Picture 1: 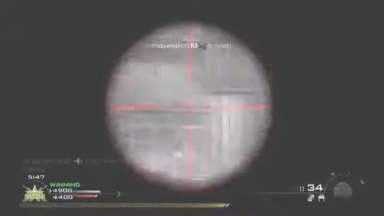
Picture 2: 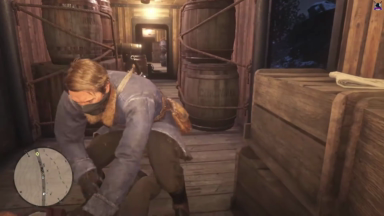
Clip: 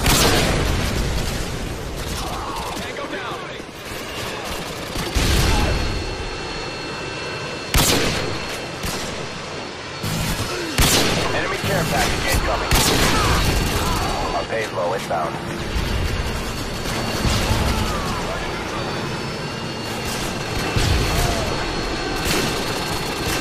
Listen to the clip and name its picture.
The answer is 1